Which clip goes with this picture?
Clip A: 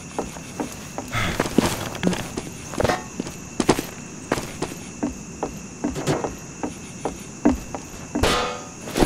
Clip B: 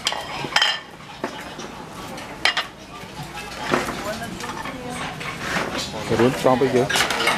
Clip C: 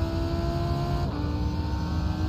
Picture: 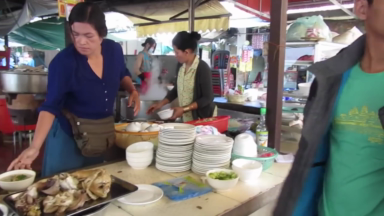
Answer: B